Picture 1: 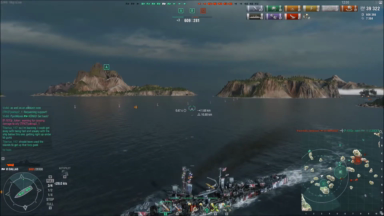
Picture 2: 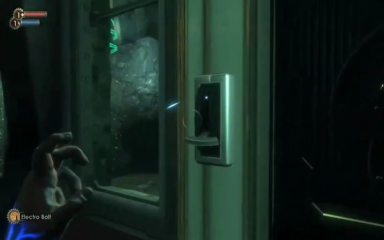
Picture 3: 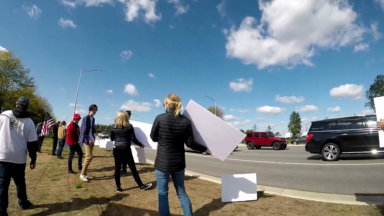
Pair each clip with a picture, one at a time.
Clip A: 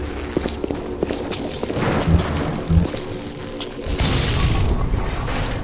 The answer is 2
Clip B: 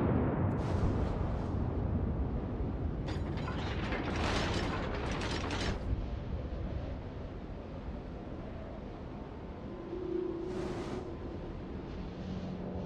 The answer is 1